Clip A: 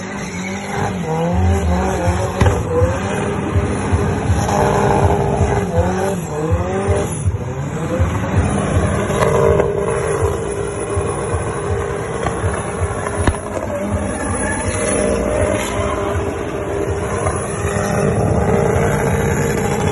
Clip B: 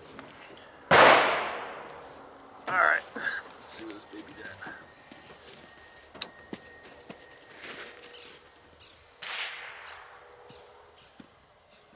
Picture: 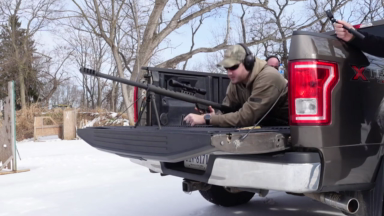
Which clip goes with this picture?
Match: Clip B